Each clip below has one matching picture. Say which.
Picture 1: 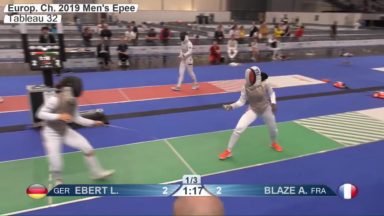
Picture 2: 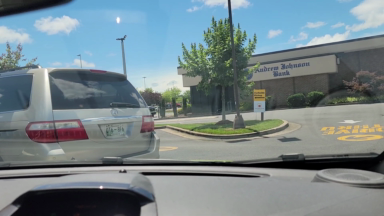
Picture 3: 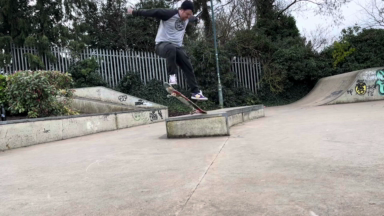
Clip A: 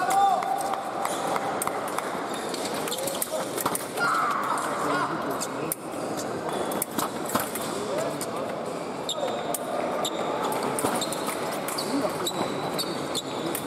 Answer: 1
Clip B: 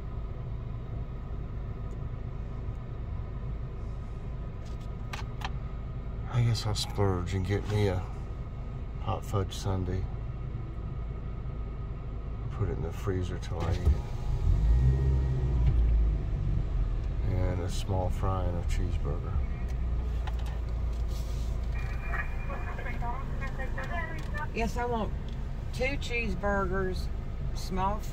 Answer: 2